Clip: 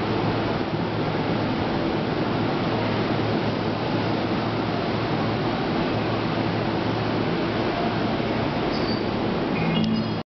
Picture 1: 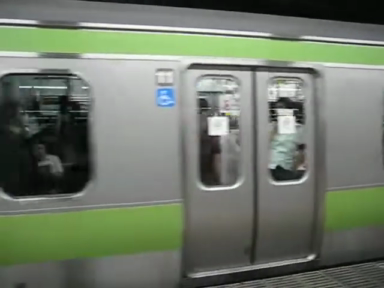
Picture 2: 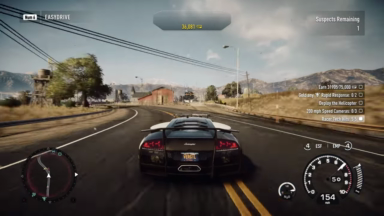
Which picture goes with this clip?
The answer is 1